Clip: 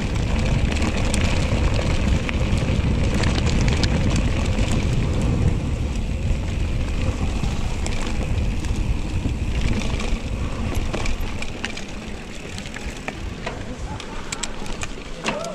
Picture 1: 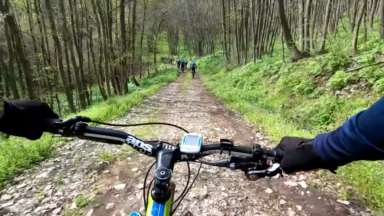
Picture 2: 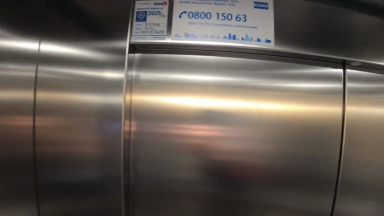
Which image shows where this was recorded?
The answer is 1